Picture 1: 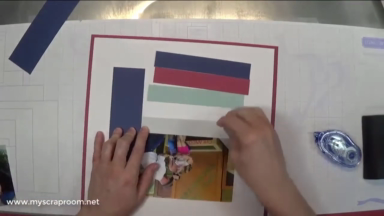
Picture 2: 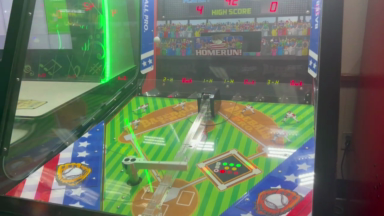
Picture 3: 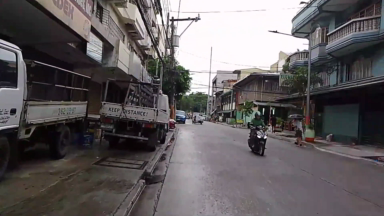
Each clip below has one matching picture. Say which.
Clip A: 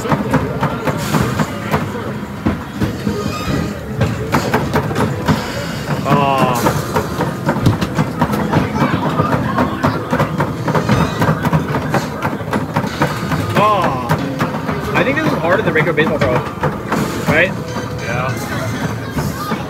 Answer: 2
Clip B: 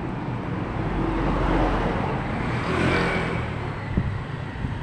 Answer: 3